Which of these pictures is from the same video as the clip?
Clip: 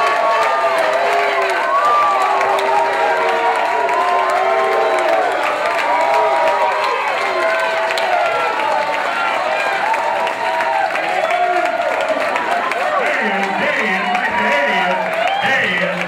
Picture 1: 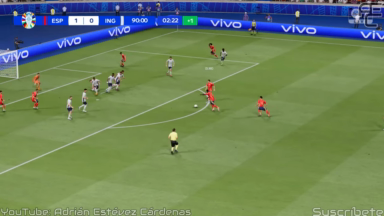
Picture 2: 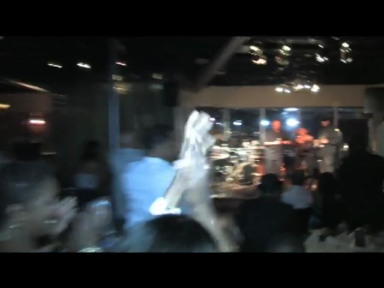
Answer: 2